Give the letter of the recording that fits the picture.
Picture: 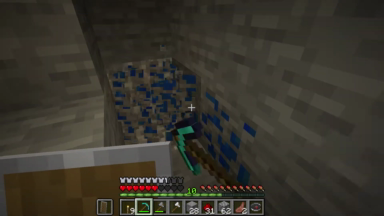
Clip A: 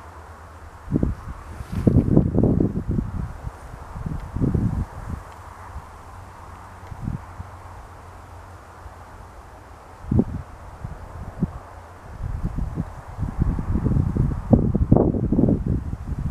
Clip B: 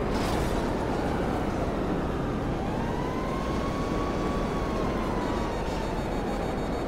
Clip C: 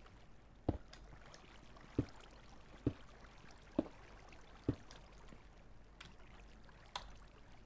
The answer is C